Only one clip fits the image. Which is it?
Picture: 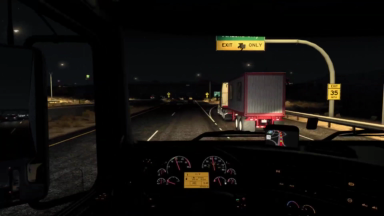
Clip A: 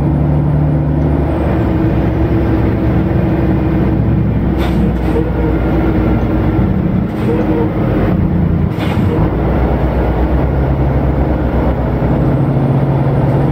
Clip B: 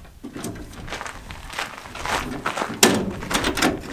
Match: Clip A